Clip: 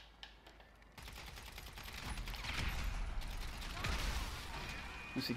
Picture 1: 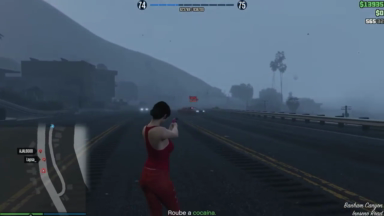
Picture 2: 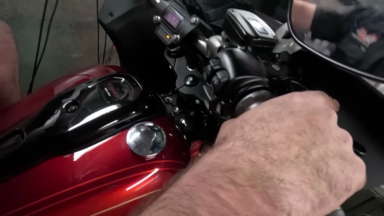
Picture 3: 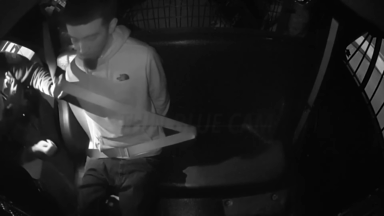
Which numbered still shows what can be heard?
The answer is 1